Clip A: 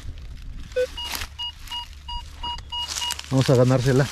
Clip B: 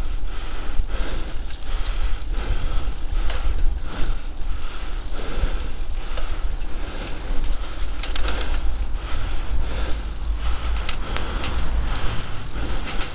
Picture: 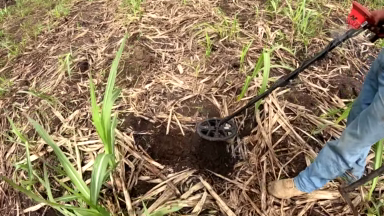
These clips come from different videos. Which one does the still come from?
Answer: A